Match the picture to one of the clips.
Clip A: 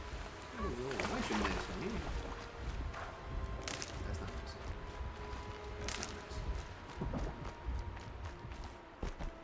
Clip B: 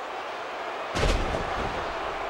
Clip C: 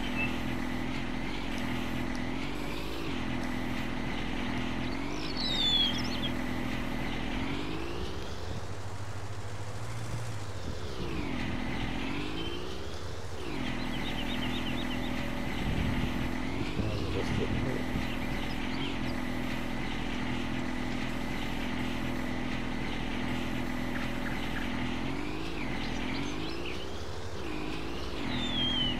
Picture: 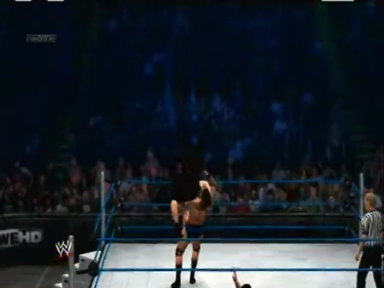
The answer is B